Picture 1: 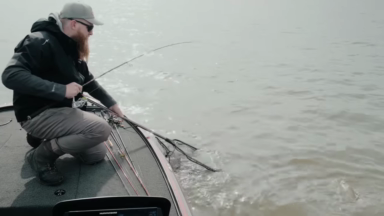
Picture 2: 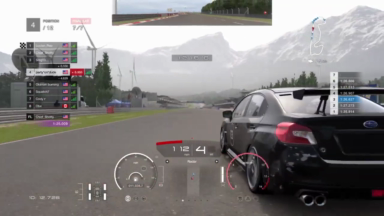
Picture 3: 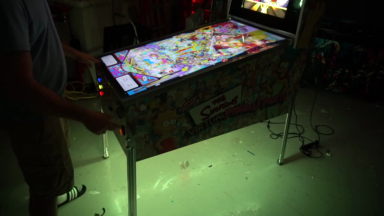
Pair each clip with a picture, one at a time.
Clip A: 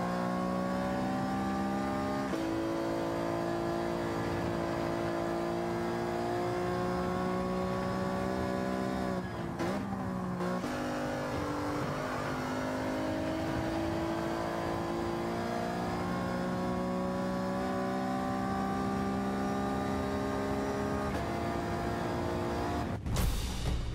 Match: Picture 2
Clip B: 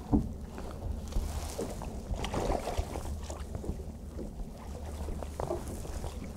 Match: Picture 1